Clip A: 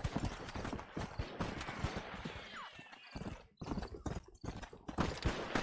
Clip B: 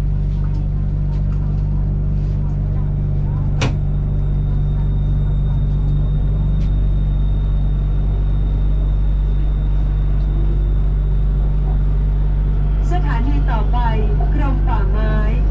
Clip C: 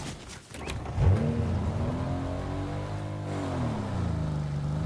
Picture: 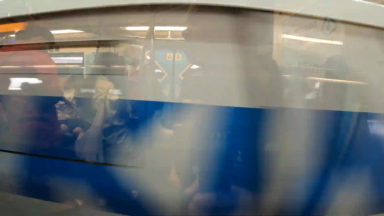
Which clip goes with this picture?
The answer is B